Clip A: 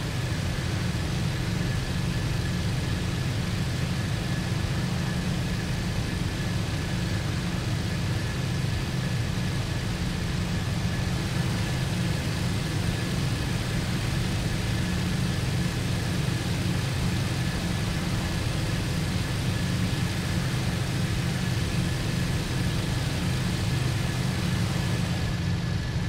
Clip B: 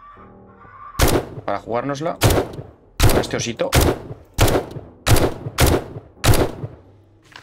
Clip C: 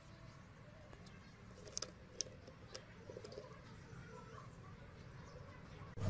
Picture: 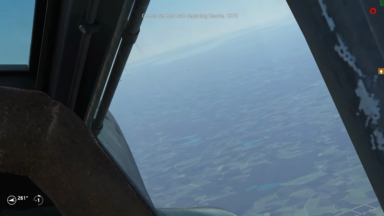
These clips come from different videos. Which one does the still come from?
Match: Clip A